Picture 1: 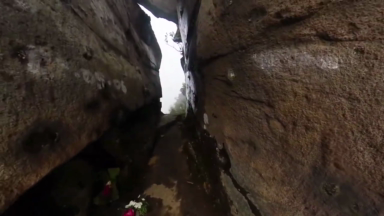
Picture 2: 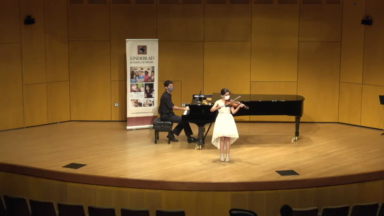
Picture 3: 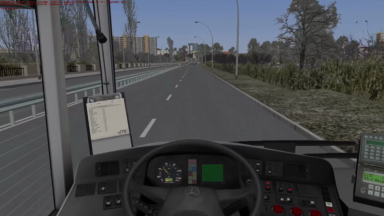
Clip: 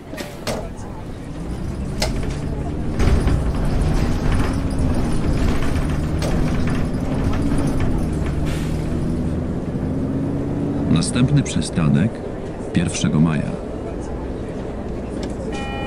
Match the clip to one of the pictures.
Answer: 3